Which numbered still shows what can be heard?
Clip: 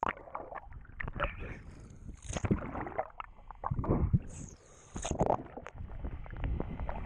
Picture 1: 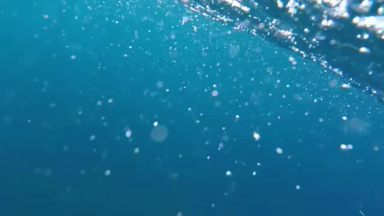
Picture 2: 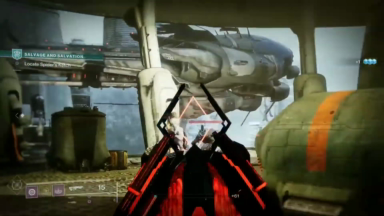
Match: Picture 1